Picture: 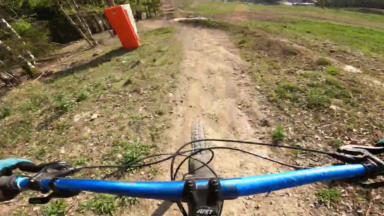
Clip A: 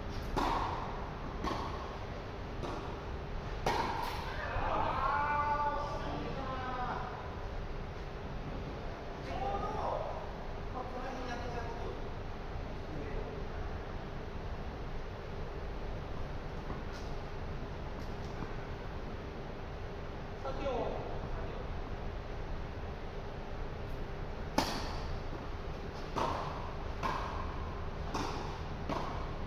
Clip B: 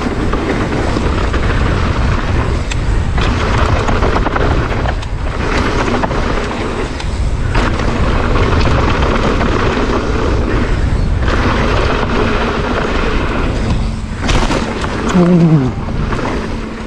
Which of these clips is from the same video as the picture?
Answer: B